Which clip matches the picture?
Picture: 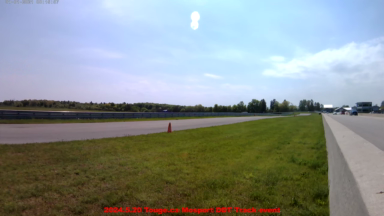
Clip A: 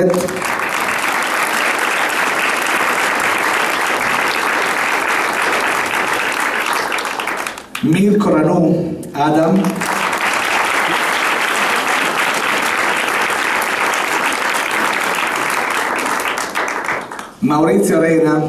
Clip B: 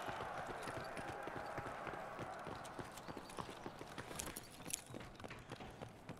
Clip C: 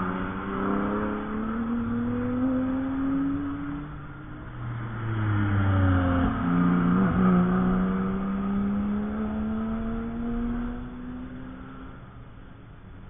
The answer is C